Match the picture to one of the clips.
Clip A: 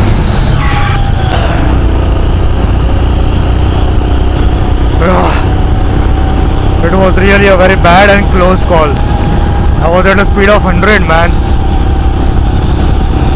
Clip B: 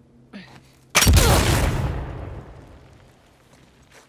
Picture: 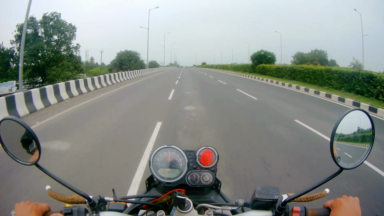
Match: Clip A